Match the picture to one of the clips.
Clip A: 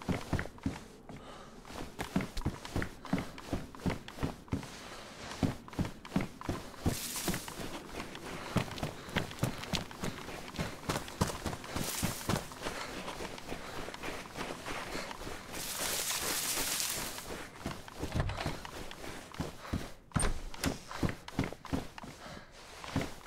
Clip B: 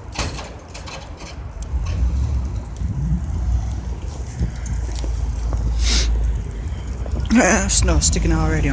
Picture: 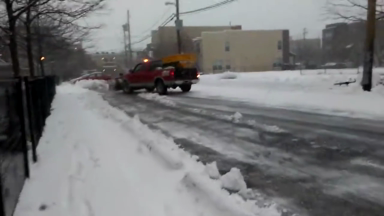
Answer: B